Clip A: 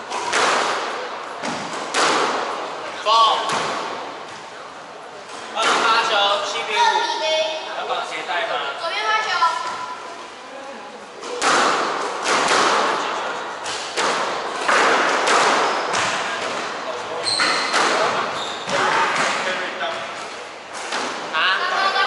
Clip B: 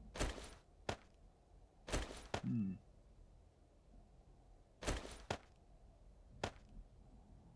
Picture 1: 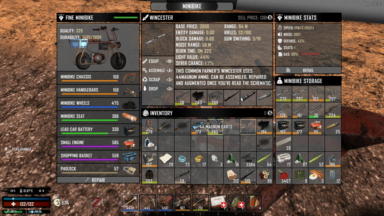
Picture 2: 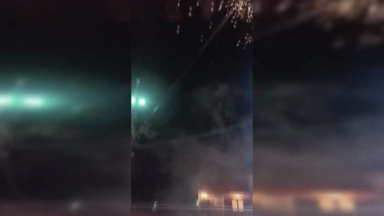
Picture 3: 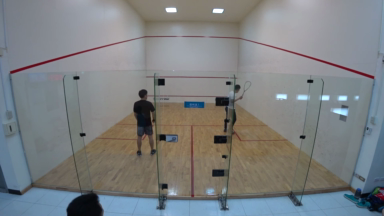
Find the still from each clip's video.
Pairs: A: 3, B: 1